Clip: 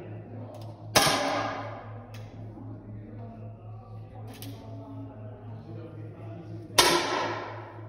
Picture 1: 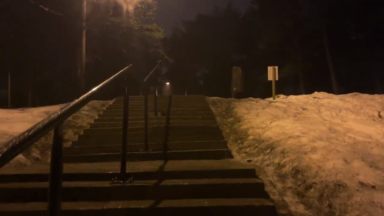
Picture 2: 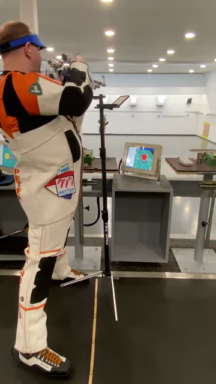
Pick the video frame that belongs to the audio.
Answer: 2